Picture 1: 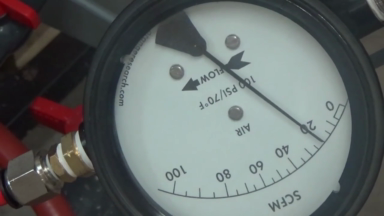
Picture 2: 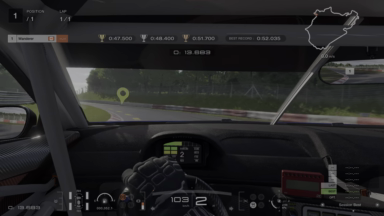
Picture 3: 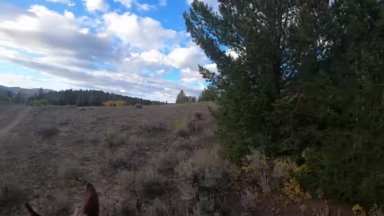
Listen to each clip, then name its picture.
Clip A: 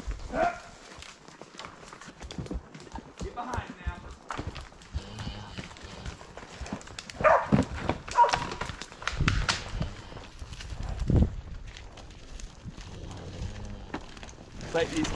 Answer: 3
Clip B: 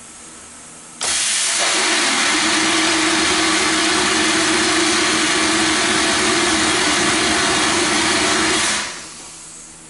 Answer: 1